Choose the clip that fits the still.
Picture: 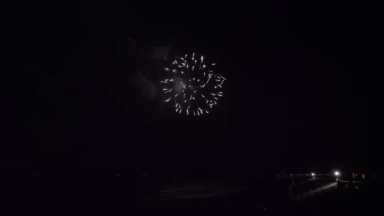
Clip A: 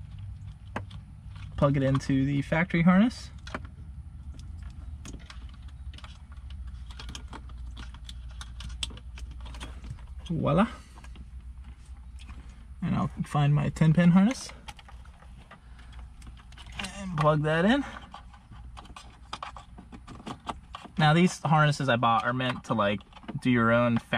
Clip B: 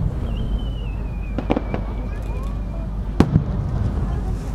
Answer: B